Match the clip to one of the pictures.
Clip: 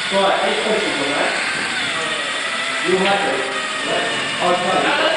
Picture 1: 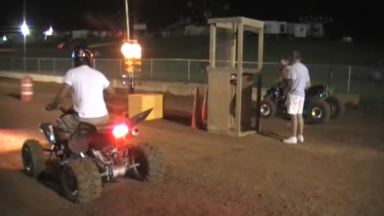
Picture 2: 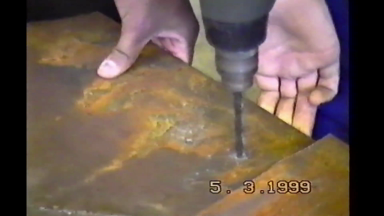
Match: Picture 2